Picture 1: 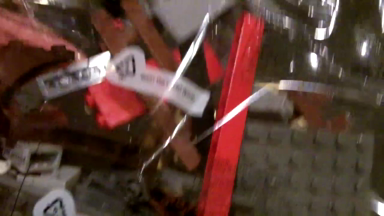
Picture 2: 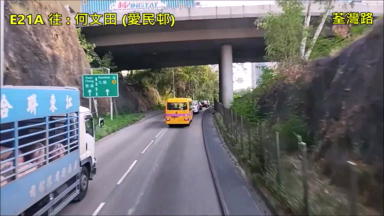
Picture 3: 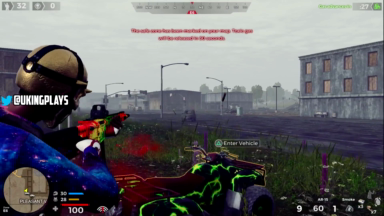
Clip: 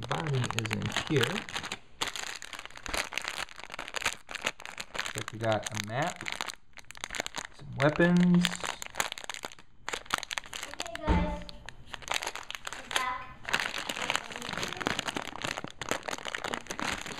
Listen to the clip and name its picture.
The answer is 1